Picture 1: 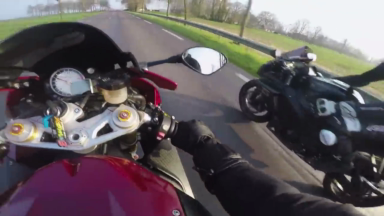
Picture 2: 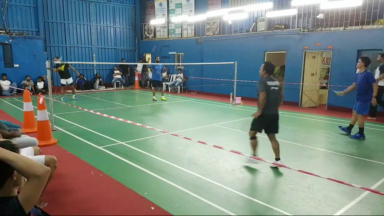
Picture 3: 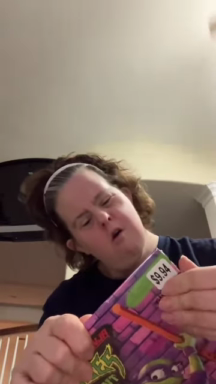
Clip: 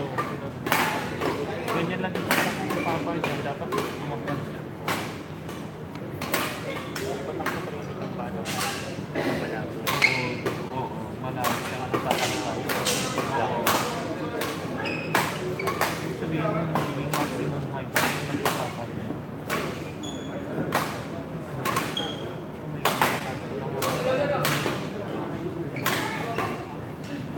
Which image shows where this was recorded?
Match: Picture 2